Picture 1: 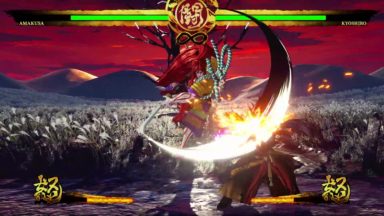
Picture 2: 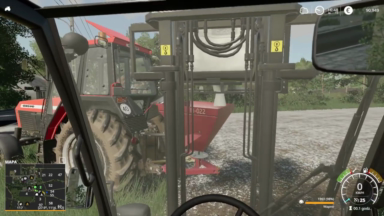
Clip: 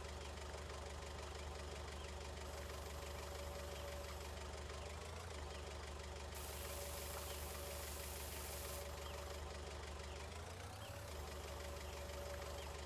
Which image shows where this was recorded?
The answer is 2